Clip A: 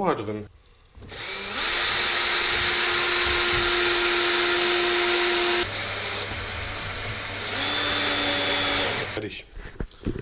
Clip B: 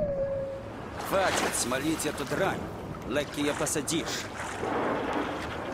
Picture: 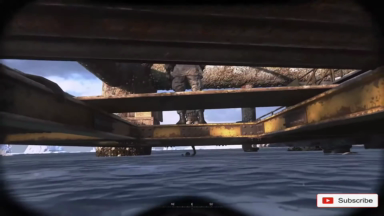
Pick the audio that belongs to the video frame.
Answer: B